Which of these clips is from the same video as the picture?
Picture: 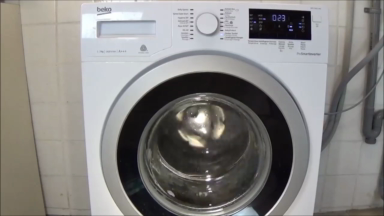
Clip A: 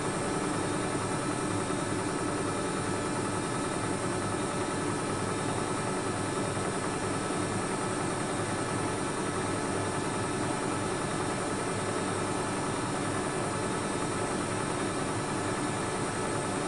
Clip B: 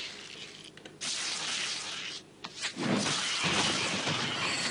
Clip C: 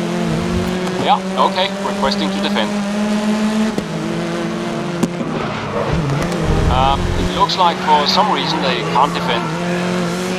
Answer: A